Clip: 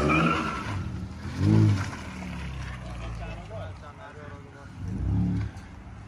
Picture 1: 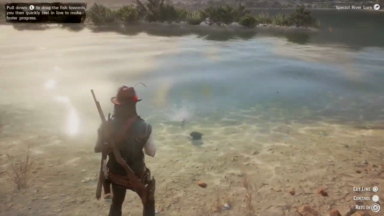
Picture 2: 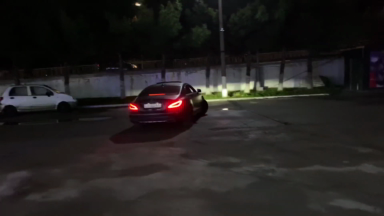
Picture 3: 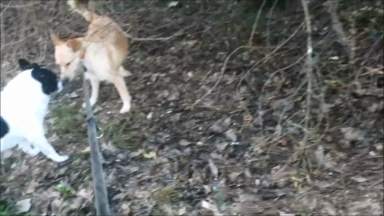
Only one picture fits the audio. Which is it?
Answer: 2